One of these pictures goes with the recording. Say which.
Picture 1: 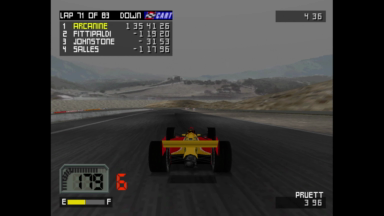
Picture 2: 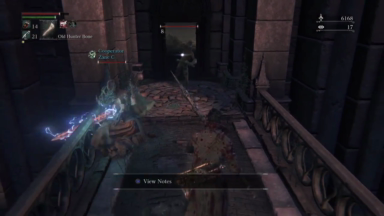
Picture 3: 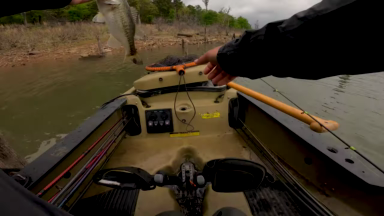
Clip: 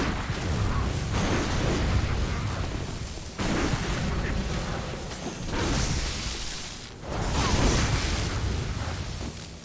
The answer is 2